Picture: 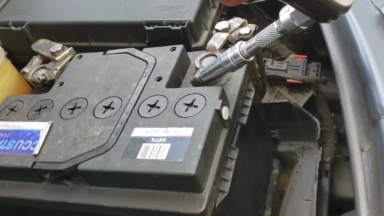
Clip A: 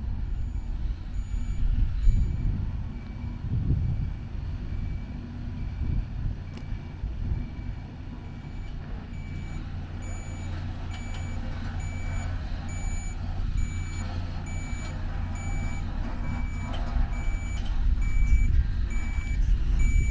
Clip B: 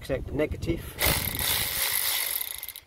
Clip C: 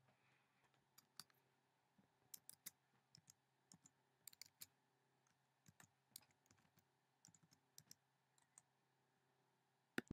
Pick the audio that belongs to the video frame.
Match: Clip B